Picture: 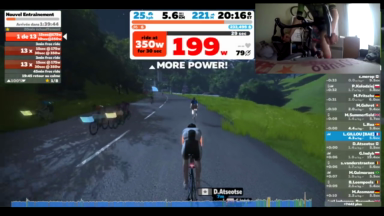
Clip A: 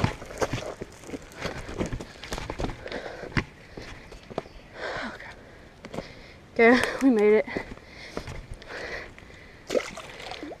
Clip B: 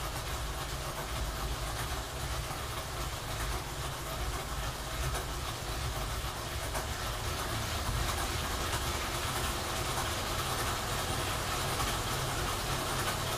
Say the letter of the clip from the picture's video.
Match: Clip B